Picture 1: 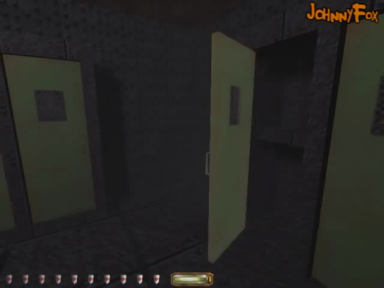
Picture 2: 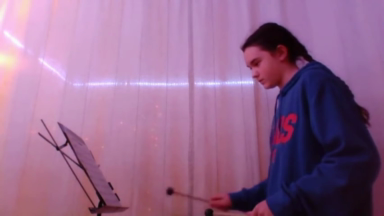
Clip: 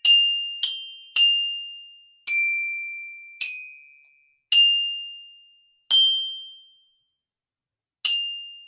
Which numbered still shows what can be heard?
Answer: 2